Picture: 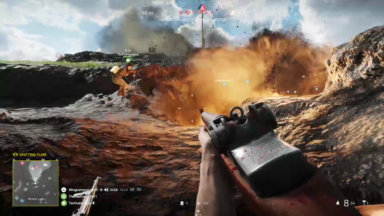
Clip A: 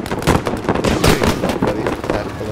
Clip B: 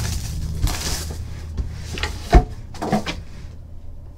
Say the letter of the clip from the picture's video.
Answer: A